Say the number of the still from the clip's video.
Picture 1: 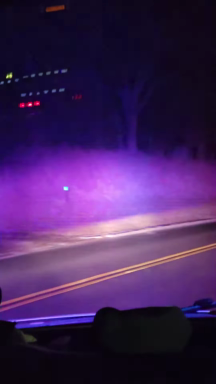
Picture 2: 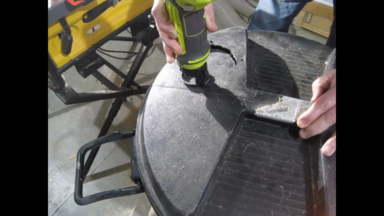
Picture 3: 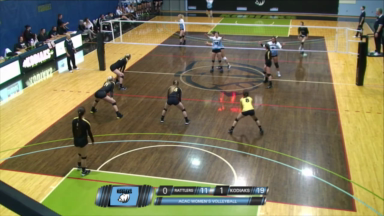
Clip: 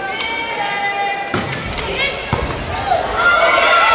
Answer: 3